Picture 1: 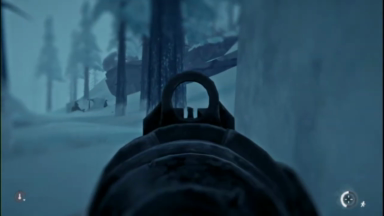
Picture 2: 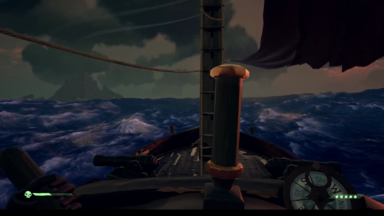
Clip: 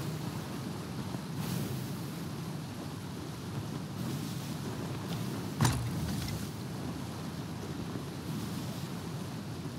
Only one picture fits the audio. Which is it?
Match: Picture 2